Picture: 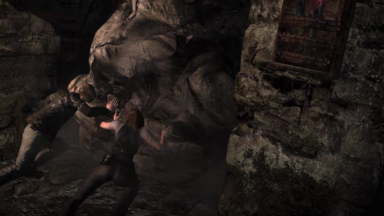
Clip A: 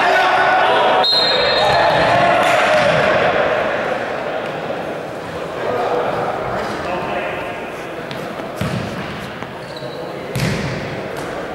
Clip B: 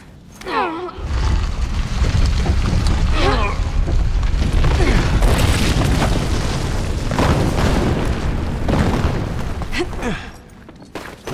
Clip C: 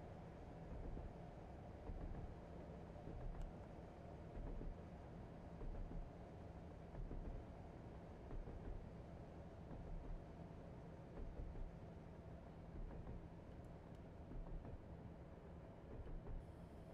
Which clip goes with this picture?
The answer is B